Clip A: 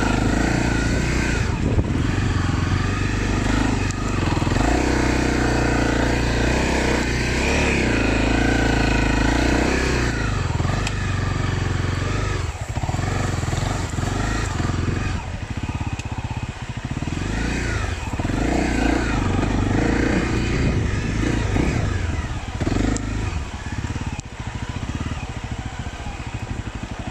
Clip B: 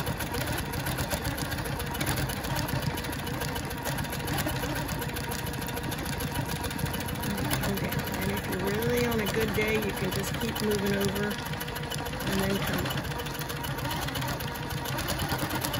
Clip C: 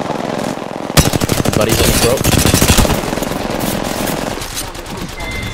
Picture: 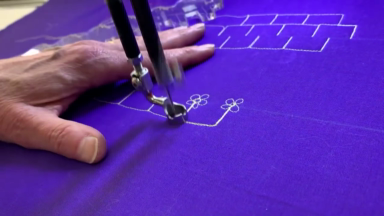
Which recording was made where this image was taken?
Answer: B